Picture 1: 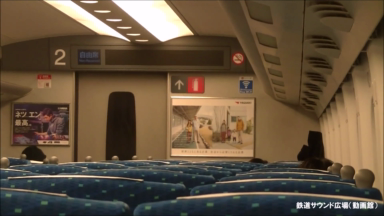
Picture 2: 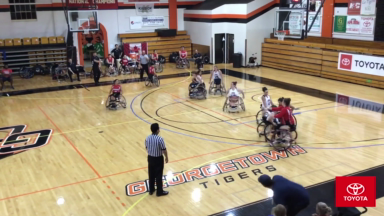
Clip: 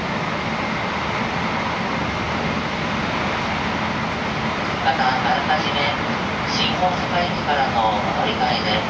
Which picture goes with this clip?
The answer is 1